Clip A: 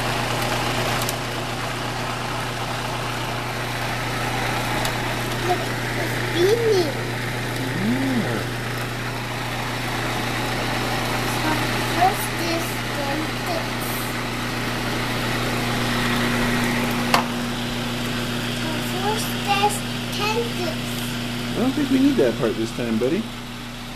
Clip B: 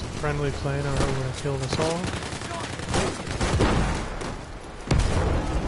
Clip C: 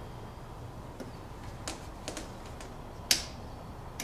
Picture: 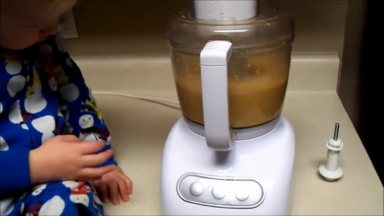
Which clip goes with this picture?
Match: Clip A